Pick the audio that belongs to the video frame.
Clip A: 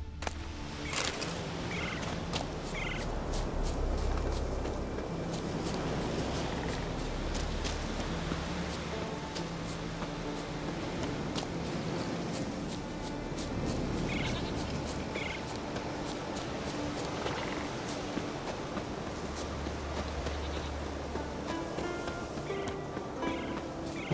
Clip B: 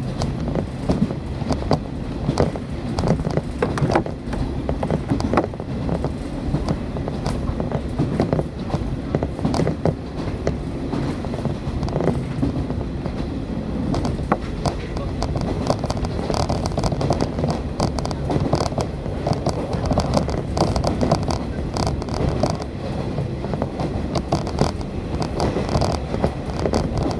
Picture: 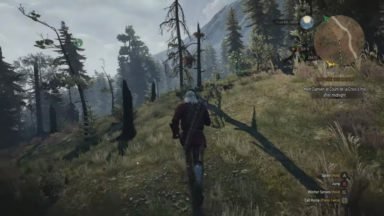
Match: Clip A